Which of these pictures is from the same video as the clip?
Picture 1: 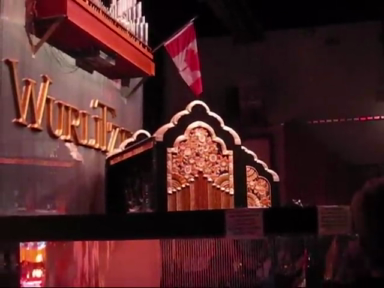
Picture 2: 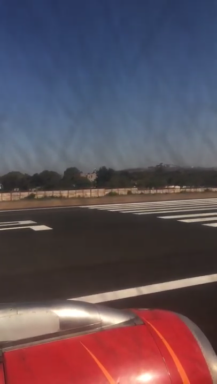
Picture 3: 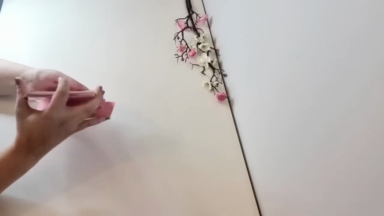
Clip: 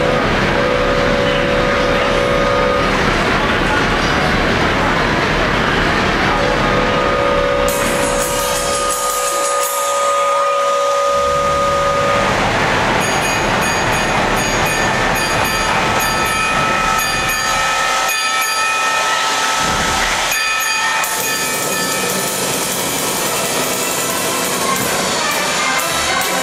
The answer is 1